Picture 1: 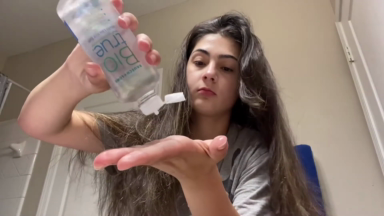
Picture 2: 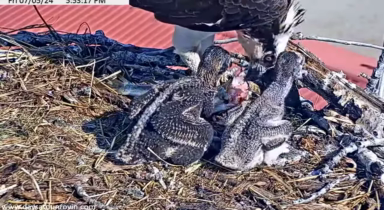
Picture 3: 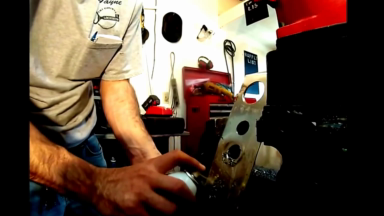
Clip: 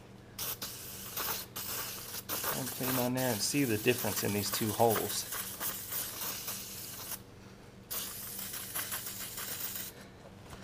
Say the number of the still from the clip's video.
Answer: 3